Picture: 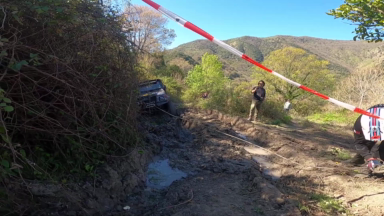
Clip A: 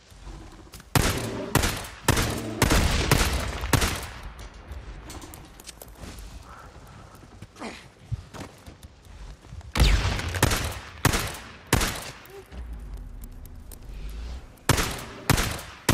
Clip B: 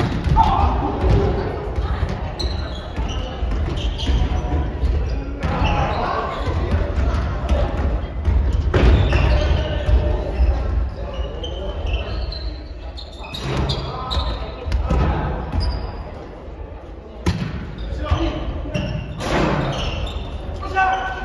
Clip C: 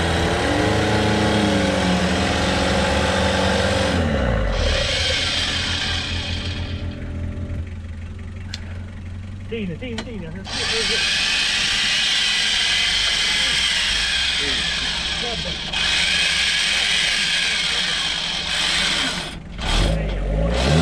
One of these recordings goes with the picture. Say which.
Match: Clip C